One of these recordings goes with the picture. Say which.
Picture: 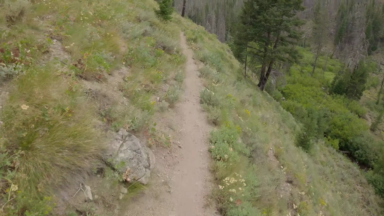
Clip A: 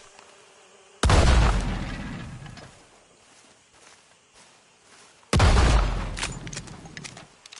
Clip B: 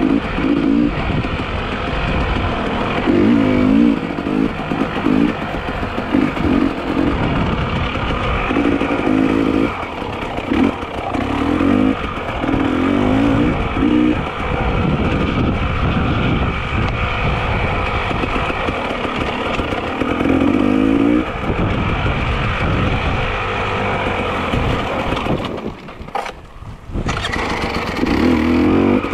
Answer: B